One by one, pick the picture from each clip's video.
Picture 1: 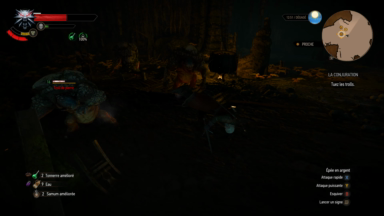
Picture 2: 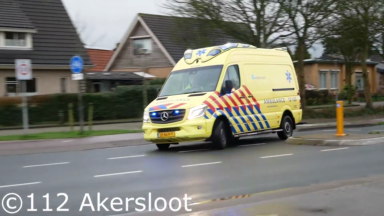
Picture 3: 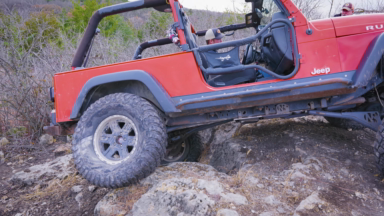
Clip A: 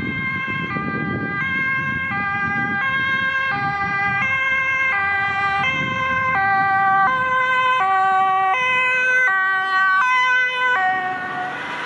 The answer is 2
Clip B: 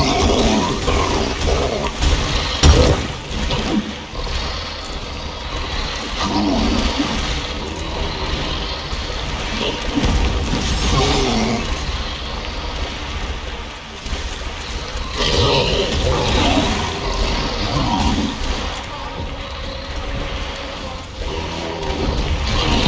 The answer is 1